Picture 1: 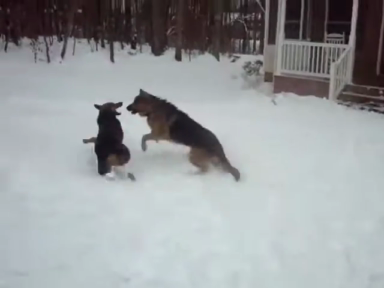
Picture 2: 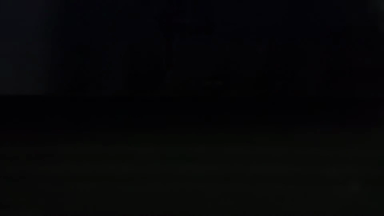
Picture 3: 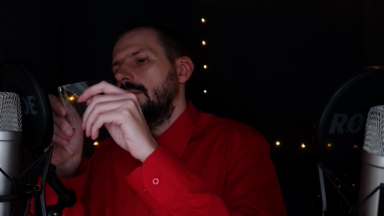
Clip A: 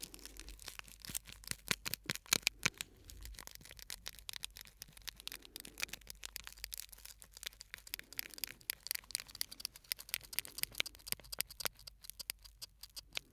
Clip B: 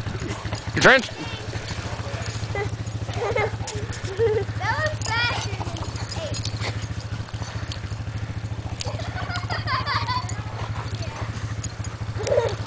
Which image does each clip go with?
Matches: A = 3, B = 1